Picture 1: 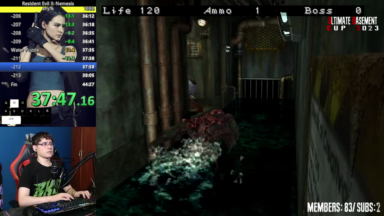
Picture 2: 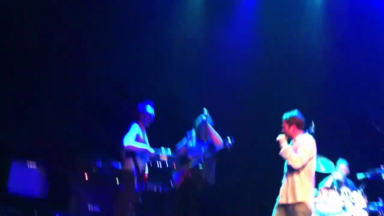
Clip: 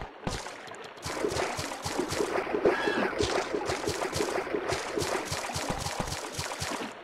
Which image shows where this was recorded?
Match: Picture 1